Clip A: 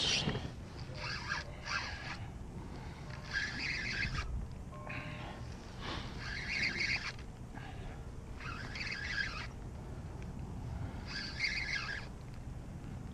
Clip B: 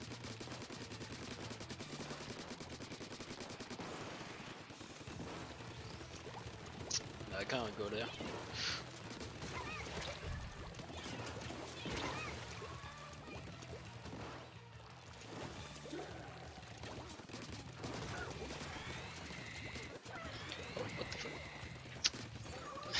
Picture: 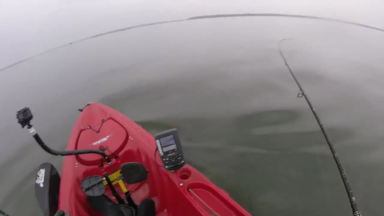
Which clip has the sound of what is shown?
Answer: A